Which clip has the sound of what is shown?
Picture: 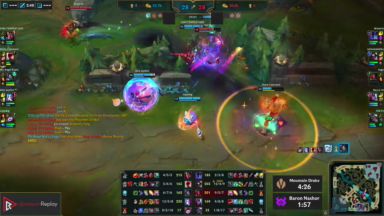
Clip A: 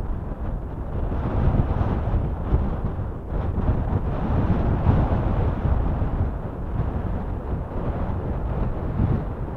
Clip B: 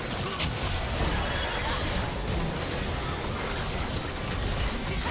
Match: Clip B